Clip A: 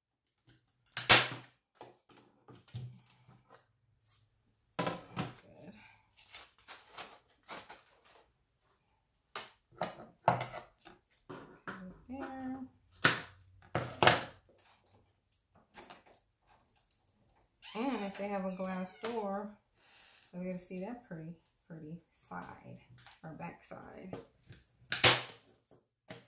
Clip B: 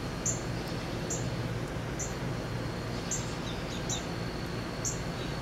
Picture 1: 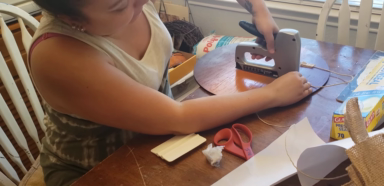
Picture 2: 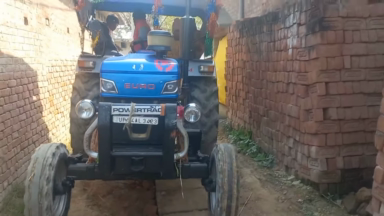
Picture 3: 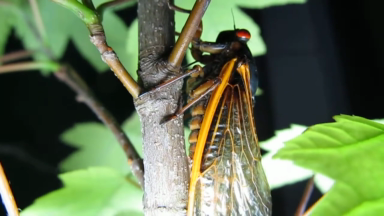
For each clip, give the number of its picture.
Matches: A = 1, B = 3